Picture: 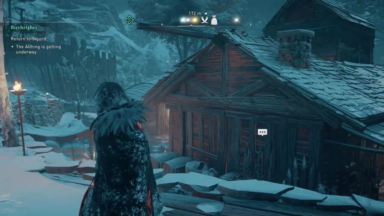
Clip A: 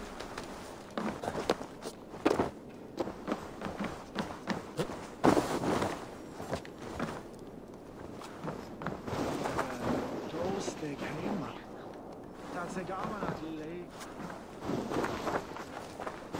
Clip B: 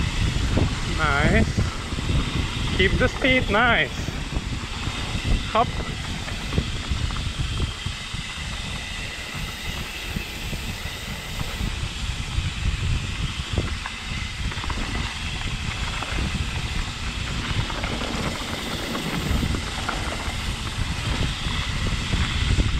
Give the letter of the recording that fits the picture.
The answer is A